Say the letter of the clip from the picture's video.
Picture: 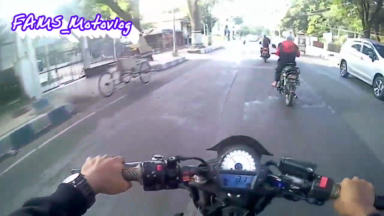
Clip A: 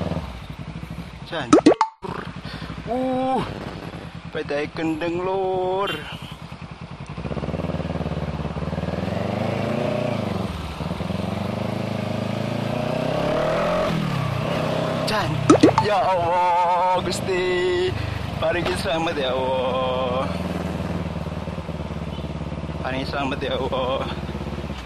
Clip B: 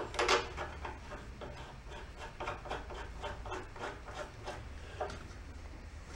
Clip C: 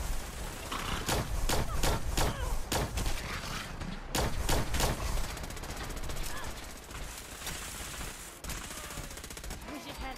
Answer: A